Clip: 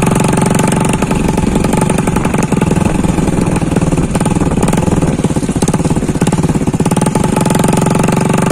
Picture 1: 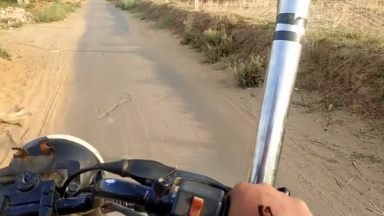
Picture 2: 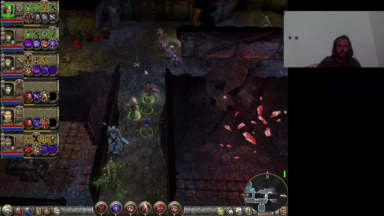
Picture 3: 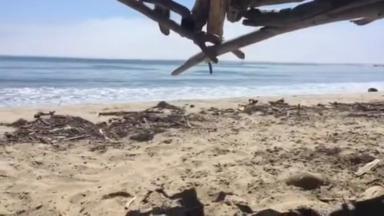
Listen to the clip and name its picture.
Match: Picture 1